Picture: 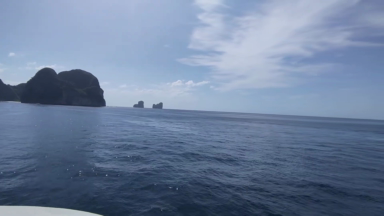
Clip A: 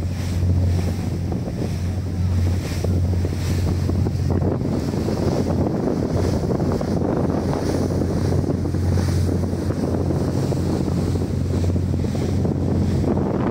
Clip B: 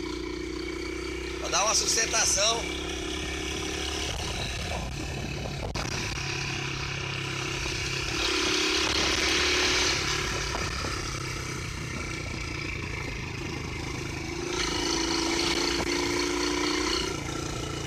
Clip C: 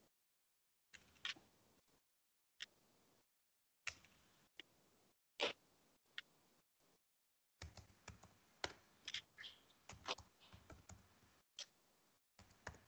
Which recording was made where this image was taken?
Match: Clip A